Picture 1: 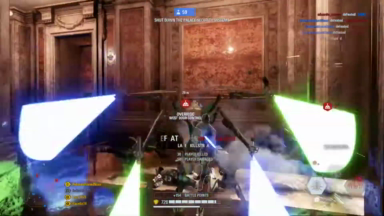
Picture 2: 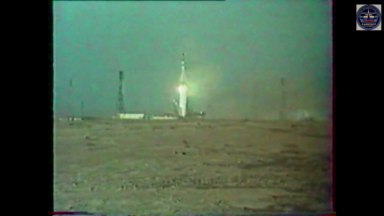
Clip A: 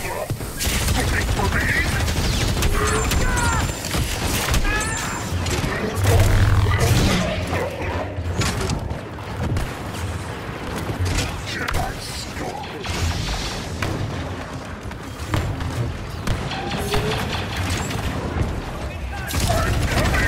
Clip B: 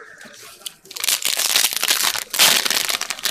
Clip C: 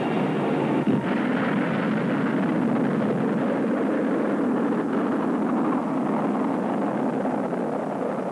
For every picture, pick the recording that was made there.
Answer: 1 A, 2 C